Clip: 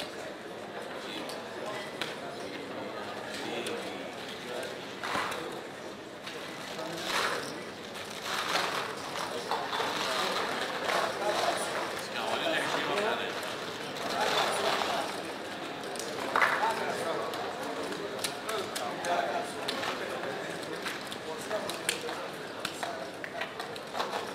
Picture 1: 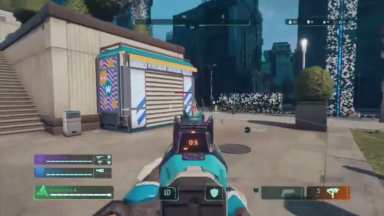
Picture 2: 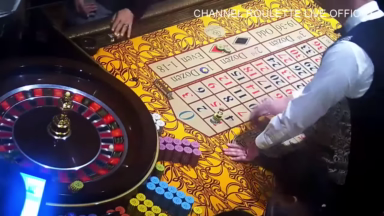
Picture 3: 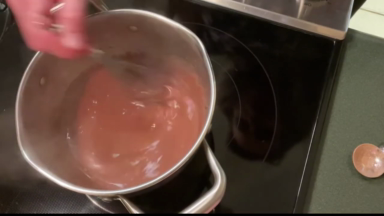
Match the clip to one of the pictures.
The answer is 2